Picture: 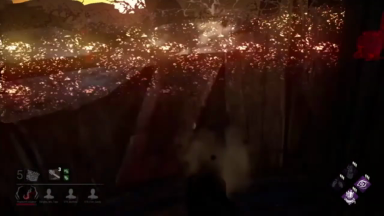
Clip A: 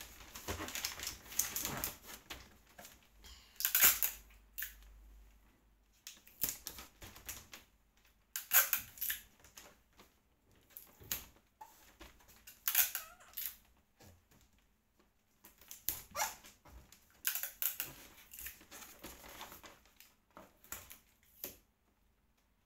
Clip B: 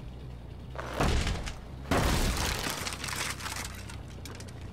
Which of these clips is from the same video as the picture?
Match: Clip B